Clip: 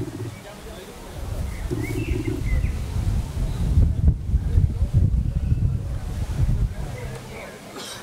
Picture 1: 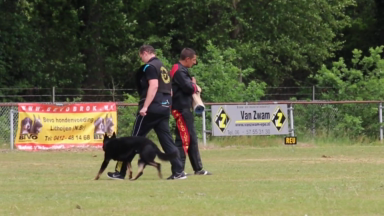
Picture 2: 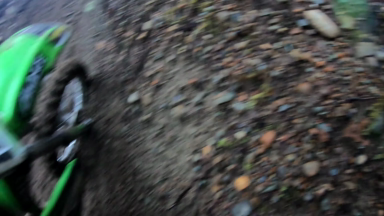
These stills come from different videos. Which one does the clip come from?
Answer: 1